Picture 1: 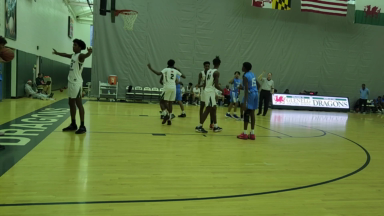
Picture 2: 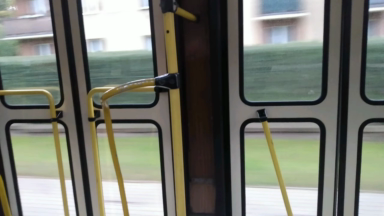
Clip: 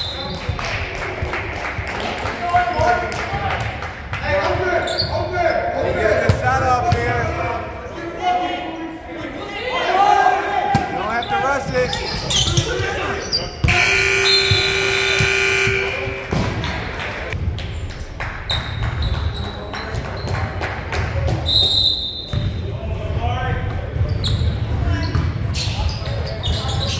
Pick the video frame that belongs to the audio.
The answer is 1